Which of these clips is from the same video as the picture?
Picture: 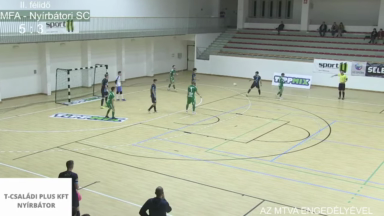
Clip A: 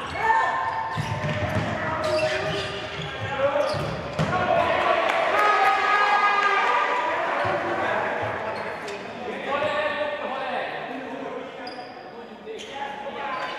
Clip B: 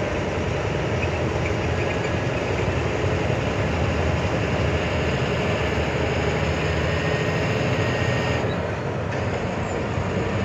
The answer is A